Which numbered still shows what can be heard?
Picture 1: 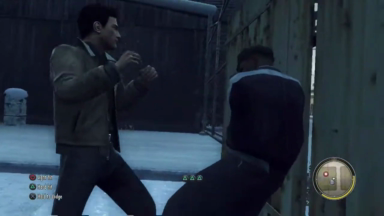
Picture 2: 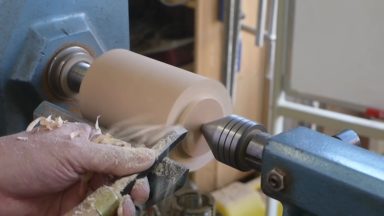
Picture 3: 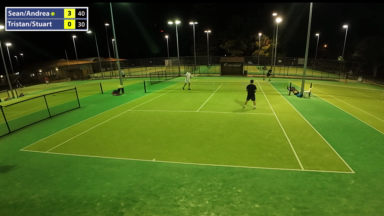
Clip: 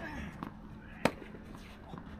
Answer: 3